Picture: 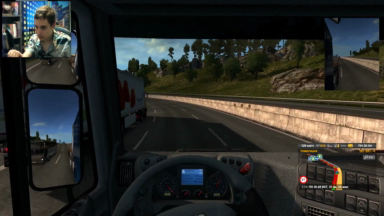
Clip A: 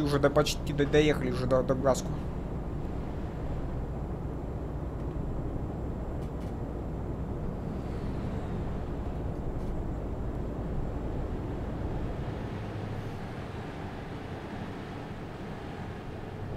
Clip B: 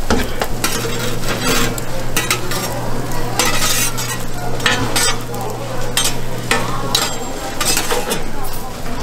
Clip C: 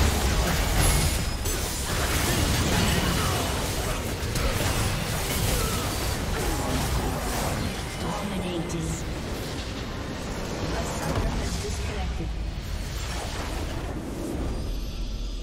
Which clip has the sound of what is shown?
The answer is A